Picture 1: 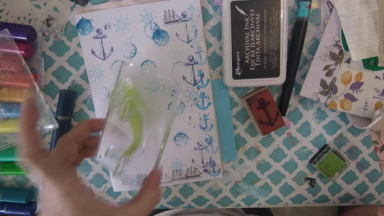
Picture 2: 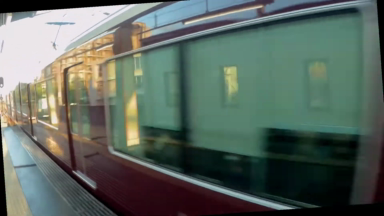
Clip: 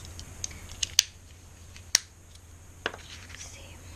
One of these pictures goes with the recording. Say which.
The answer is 1